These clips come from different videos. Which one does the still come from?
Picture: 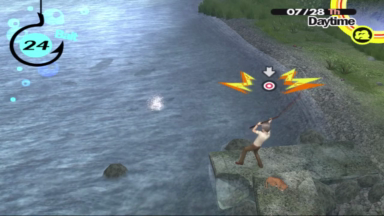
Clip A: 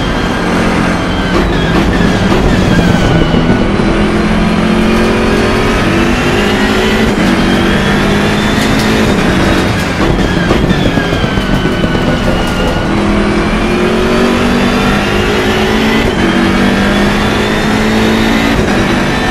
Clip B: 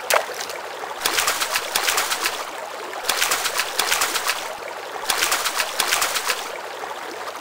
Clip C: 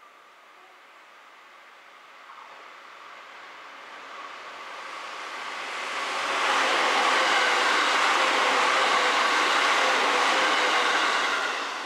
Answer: B